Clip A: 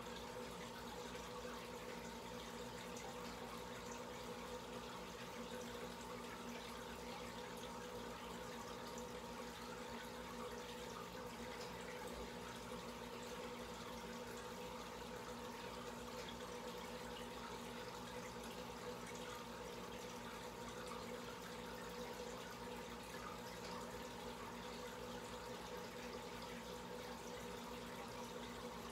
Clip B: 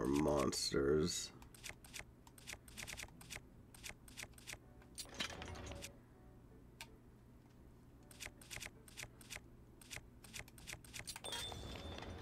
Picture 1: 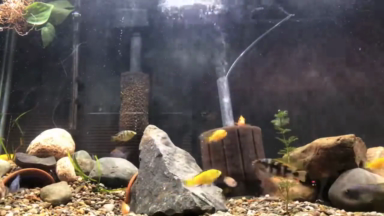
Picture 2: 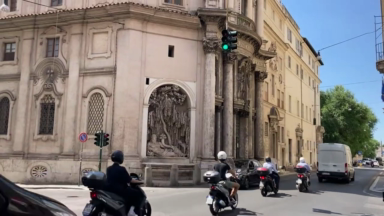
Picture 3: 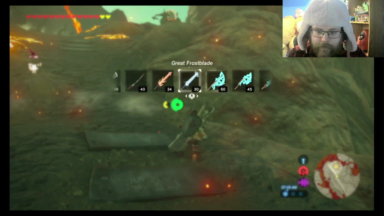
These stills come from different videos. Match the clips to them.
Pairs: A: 1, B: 3